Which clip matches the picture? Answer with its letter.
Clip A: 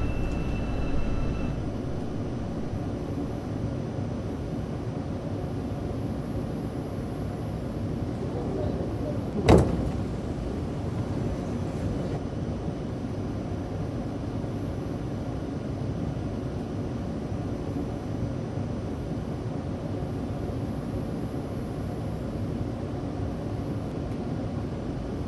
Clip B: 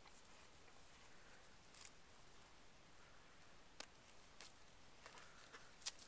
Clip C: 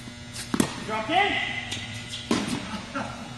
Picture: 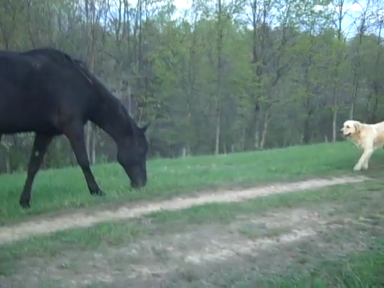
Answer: B